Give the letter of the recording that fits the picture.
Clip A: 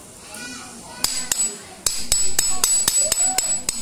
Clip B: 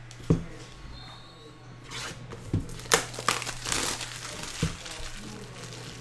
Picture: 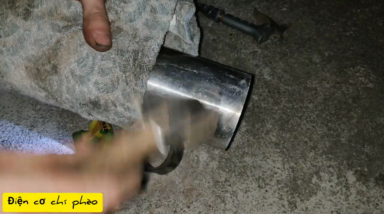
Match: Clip A